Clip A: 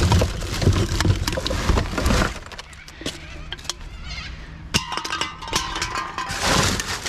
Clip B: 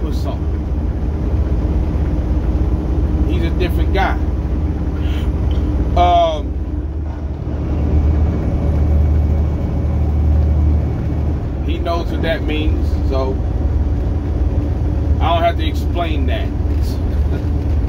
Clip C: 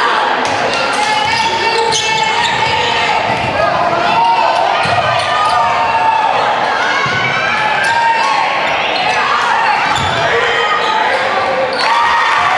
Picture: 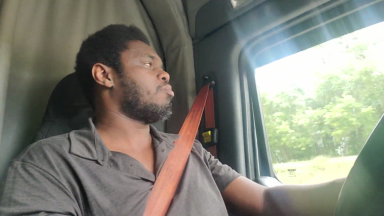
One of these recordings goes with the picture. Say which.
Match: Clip B